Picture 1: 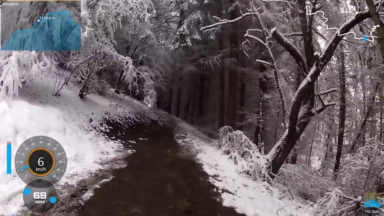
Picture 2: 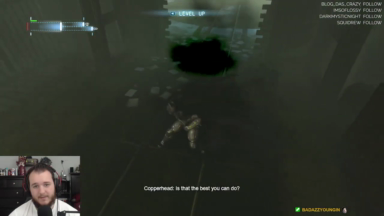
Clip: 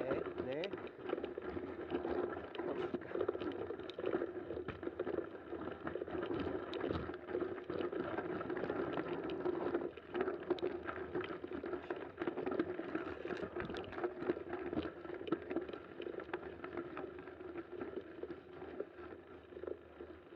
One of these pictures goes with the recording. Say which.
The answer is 1